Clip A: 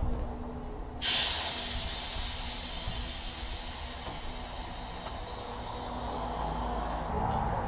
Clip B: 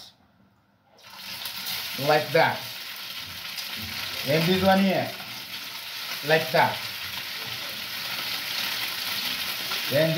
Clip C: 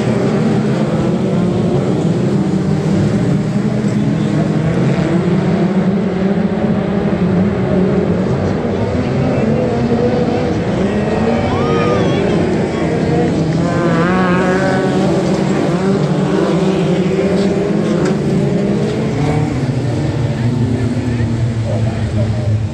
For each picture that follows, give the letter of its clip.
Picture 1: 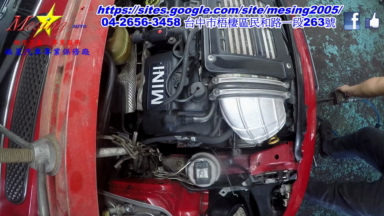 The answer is A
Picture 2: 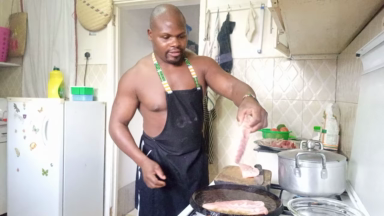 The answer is B